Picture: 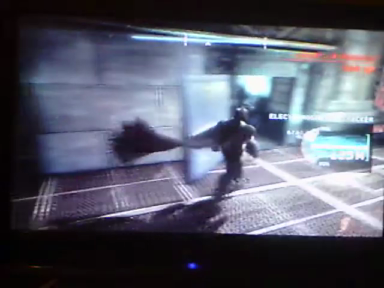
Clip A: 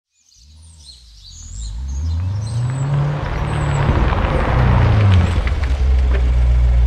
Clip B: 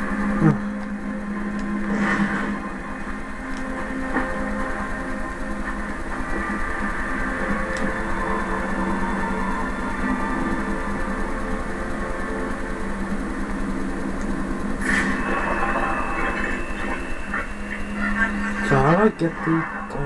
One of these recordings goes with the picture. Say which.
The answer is B